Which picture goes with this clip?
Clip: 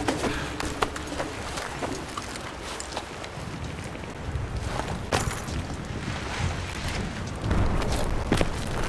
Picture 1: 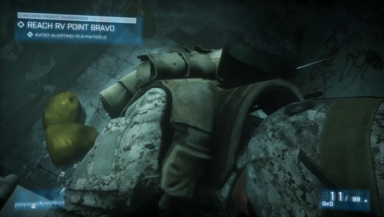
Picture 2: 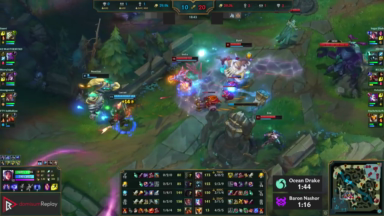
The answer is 1